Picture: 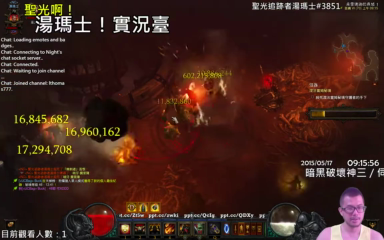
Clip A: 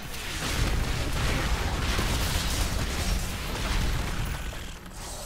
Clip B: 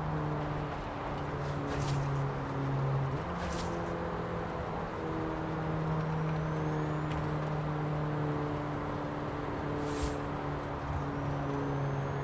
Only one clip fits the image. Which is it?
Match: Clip A